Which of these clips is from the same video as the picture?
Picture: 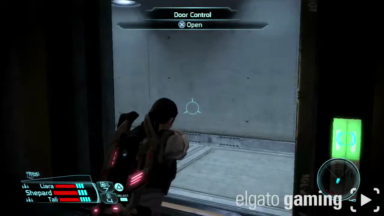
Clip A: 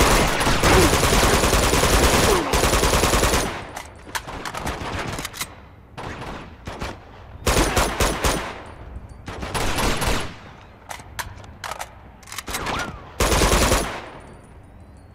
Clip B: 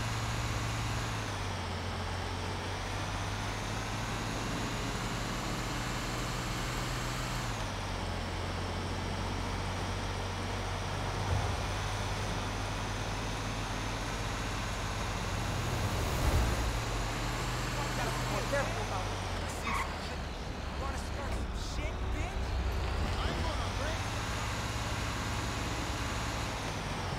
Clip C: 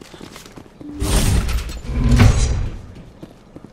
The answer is C